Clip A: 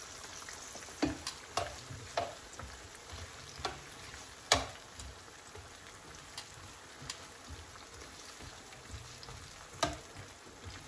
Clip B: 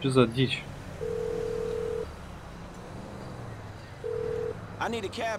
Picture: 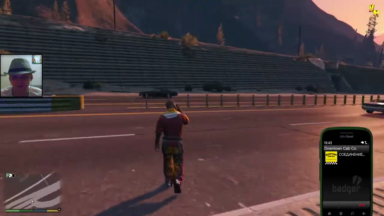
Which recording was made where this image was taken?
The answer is B